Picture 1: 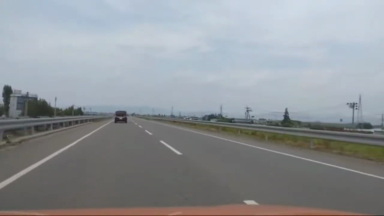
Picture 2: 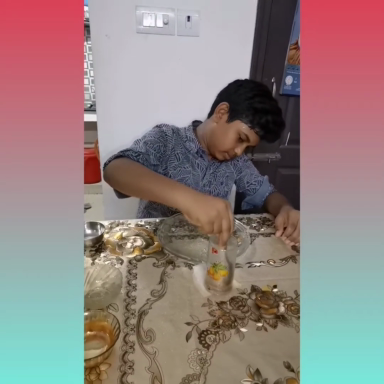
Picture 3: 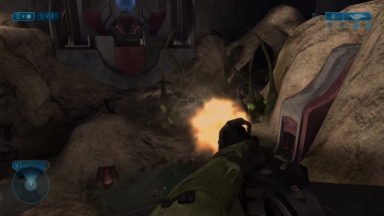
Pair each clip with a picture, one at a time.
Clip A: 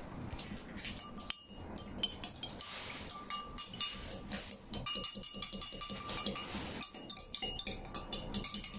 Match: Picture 2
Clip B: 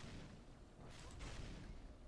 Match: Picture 3